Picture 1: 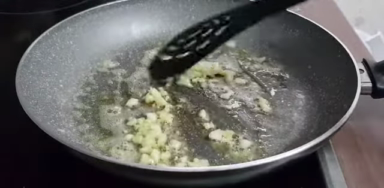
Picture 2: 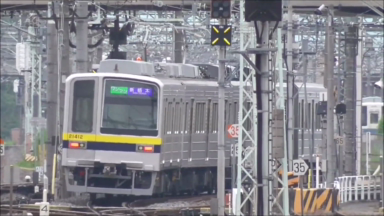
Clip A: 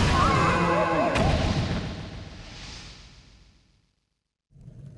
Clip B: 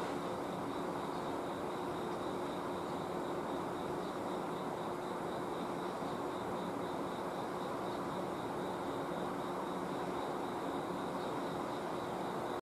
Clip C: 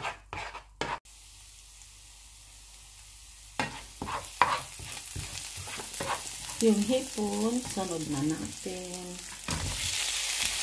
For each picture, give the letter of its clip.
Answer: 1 C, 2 B